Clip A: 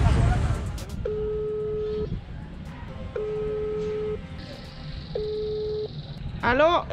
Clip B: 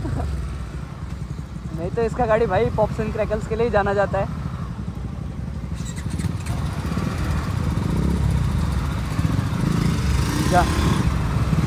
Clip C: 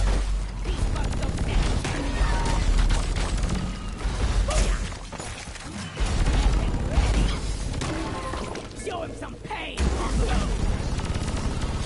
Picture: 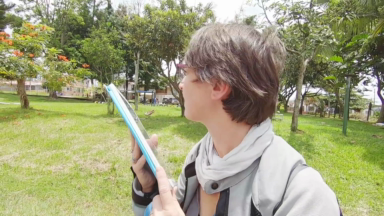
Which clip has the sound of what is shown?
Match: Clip A